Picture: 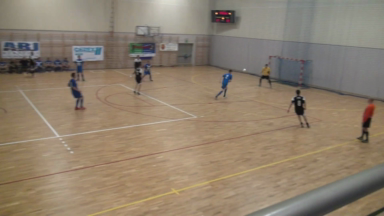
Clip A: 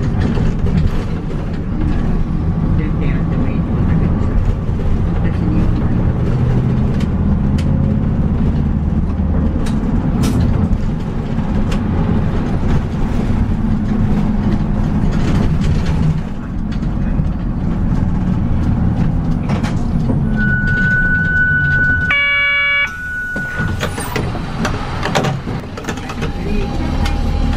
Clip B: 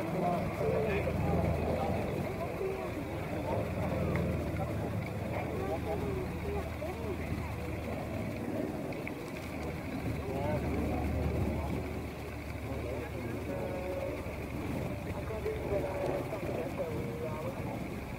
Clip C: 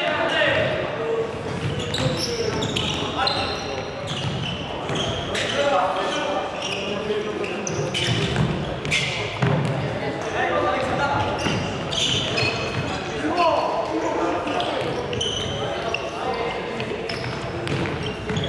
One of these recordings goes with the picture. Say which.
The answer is C